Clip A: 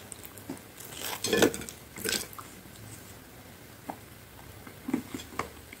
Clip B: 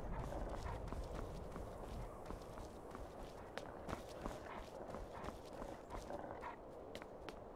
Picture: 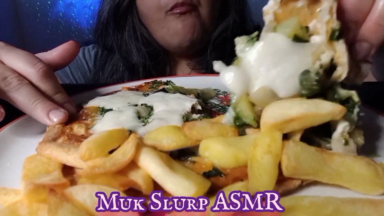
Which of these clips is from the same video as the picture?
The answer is A